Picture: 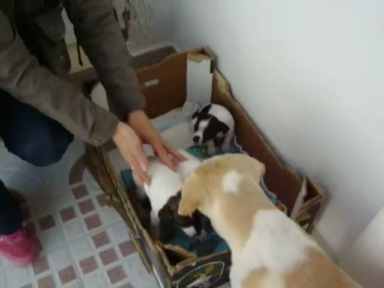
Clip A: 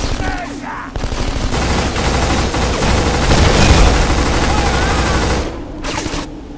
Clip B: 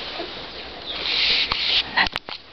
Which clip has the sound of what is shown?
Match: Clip B